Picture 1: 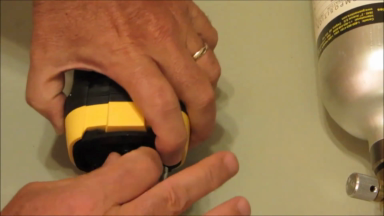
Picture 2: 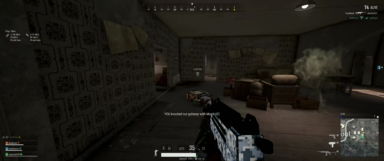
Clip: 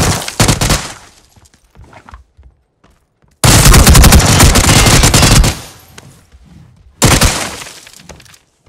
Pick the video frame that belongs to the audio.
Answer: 2